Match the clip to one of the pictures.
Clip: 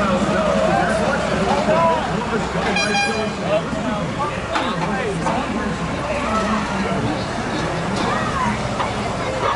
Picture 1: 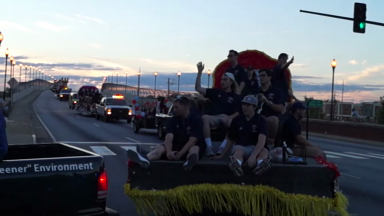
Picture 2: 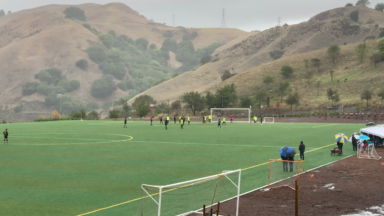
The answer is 1